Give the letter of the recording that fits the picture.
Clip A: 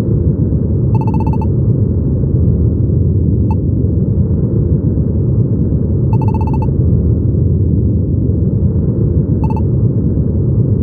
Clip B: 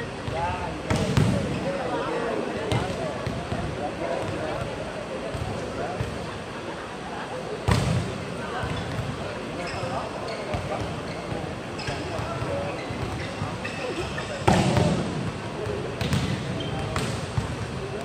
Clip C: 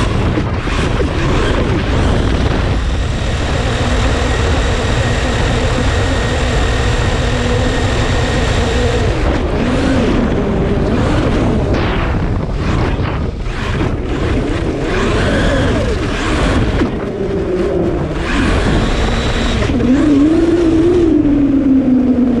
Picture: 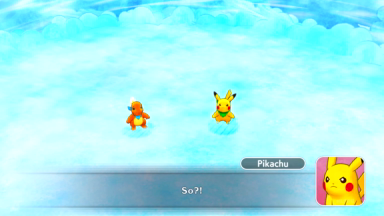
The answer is A